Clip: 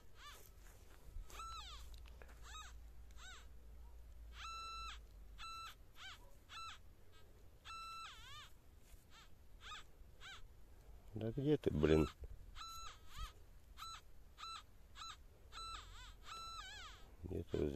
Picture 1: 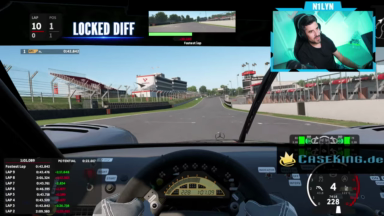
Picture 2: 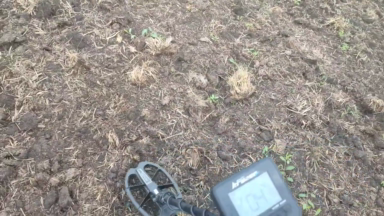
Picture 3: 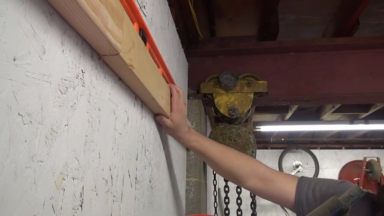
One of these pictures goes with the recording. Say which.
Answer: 2